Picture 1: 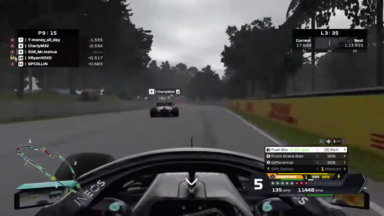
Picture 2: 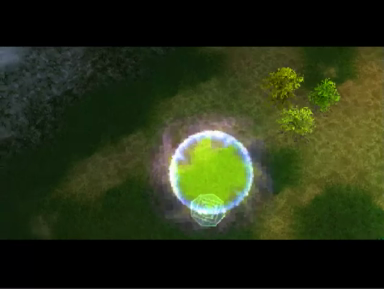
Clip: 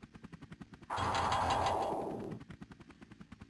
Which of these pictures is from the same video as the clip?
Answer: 2